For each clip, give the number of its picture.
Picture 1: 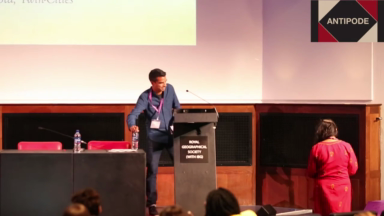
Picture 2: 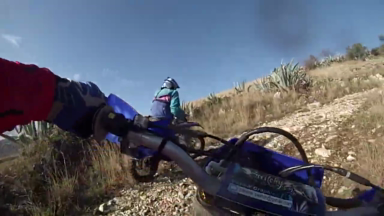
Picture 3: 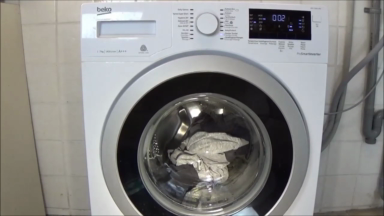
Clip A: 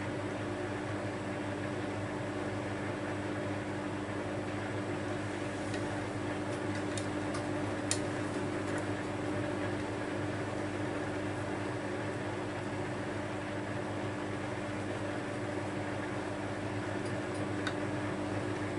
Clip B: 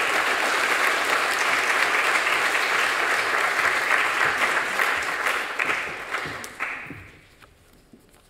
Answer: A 3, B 1